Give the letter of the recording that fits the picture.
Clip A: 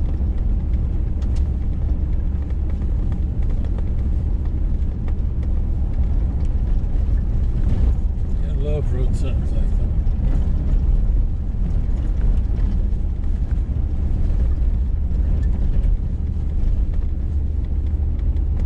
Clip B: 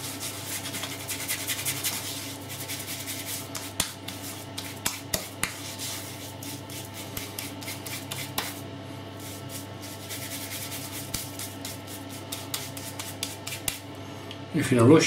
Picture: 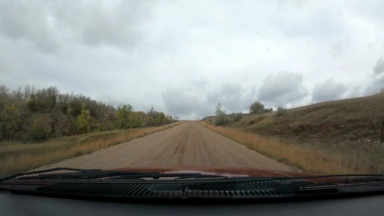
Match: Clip A